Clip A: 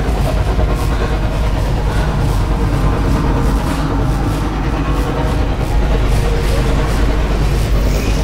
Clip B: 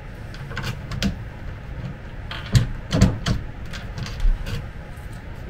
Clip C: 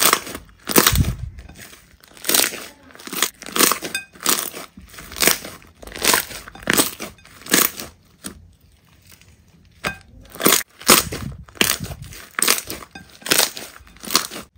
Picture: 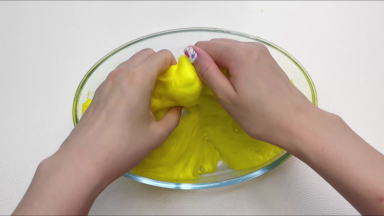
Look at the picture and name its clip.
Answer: C